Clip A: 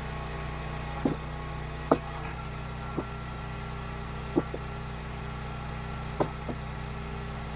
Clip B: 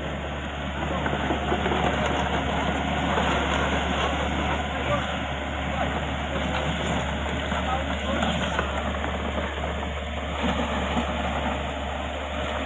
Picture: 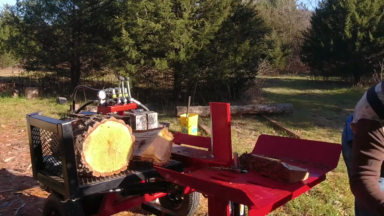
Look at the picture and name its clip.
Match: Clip A